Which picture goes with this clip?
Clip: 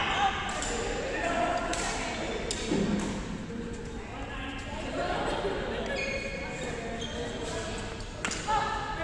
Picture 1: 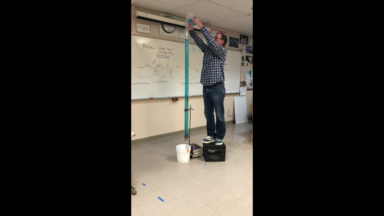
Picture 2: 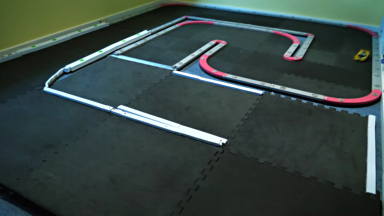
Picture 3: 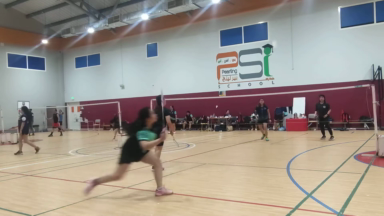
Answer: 3